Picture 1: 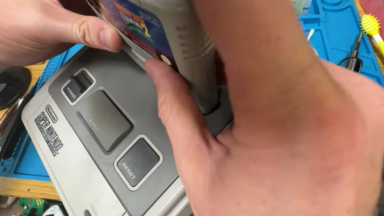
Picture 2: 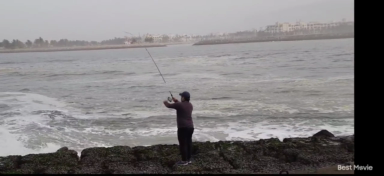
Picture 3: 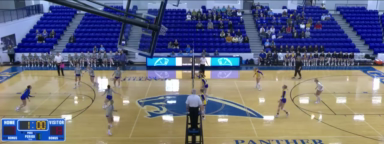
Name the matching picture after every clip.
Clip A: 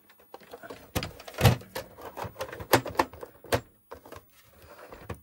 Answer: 1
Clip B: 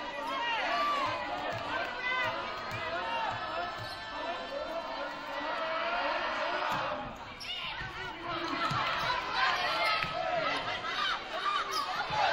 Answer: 3